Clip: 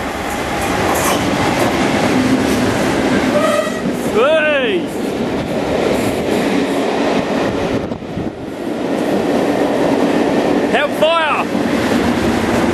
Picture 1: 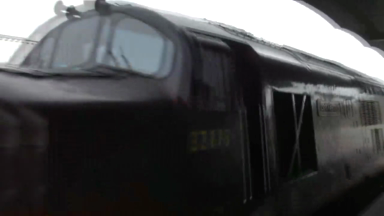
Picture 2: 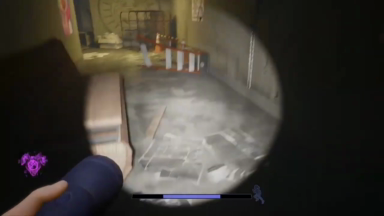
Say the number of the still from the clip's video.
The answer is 1